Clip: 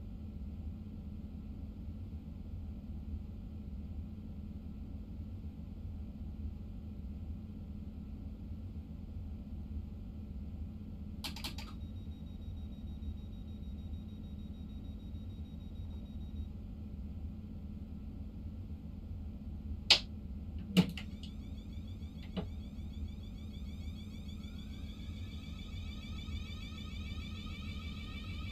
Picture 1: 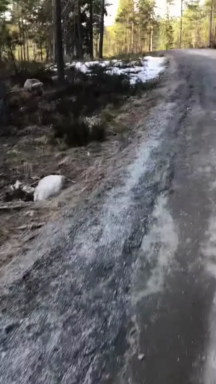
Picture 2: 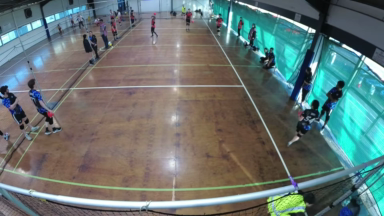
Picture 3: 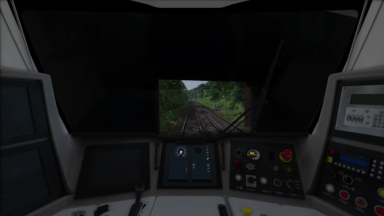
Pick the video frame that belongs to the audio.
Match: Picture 3